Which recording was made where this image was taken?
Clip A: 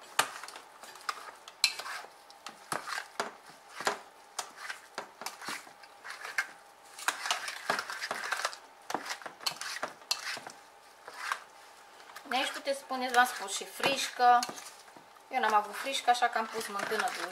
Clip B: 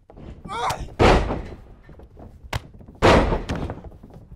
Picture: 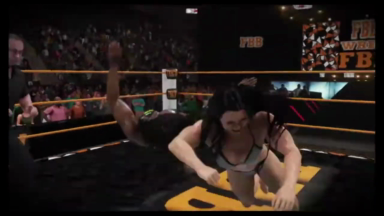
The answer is B